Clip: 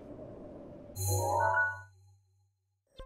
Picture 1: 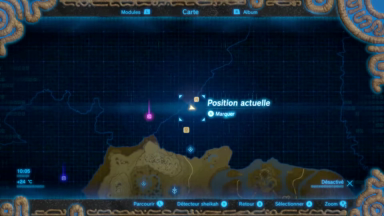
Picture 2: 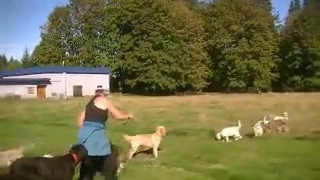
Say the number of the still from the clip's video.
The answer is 1